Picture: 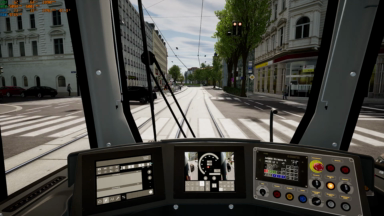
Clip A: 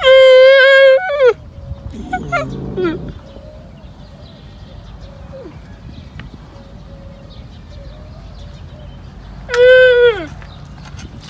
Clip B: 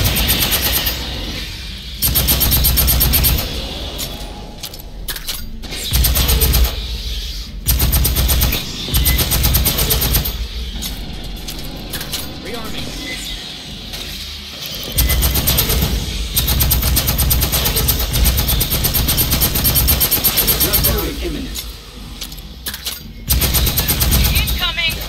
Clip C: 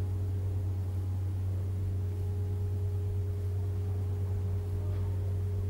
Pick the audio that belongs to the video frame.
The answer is C